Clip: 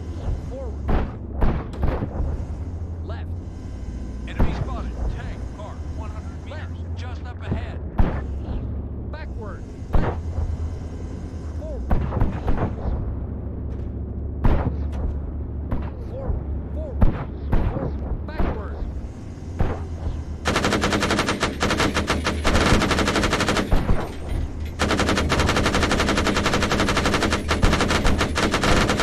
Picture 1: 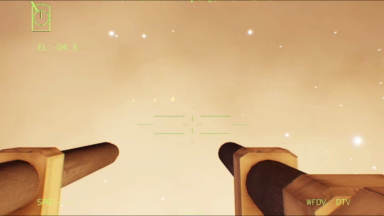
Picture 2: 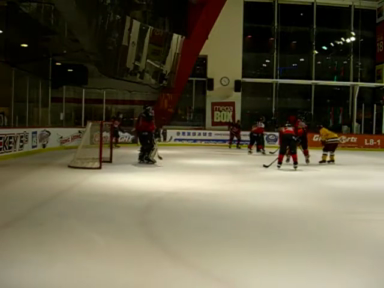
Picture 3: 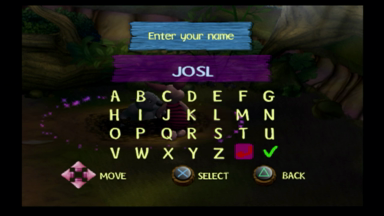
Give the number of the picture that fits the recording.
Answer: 1